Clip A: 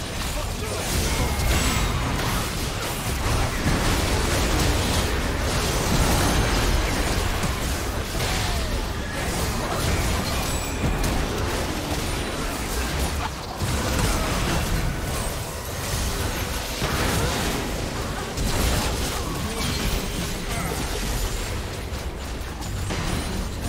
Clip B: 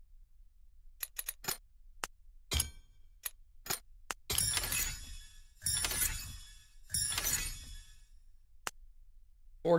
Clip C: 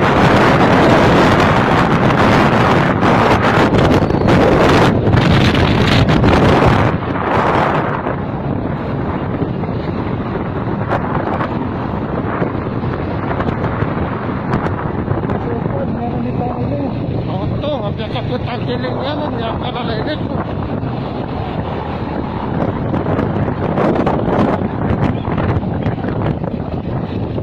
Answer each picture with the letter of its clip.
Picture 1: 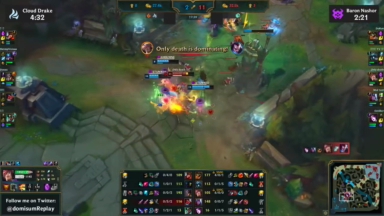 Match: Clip A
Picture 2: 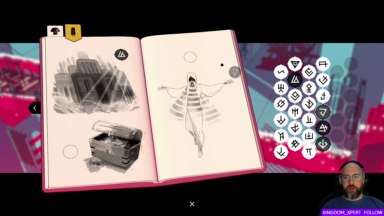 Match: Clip B